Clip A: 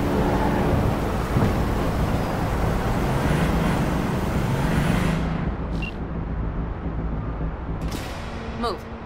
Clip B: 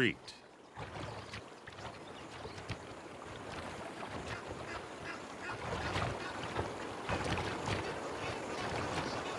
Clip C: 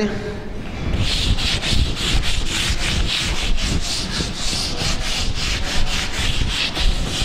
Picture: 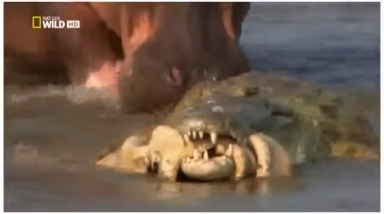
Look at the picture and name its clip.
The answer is B